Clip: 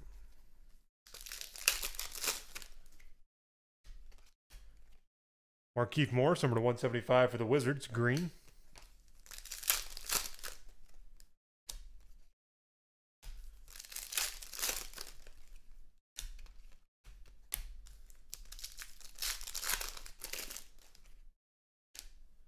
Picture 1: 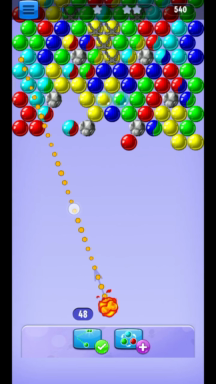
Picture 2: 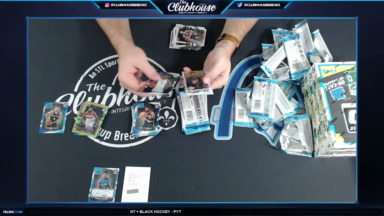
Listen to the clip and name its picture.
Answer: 2